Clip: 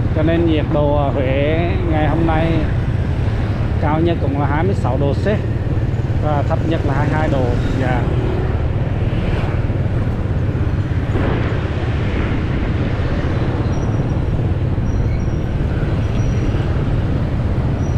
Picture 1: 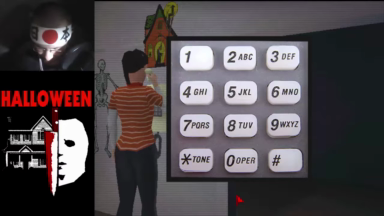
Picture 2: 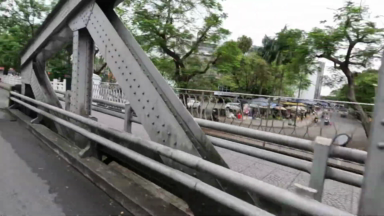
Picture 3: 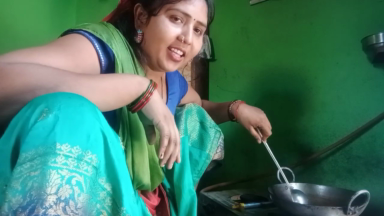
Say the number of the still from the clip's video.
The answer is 2